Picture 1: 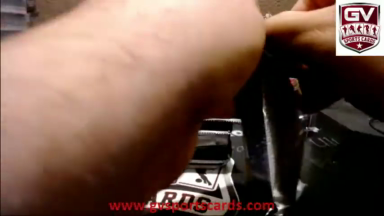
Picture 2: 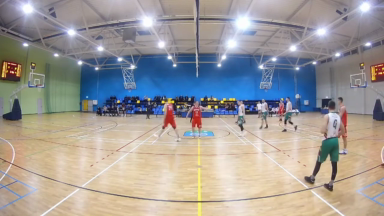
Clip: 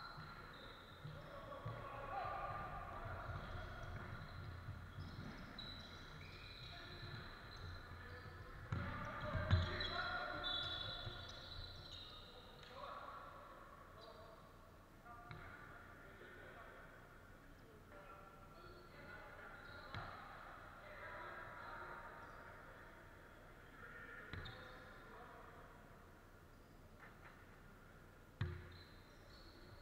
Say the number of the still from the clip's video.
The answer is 2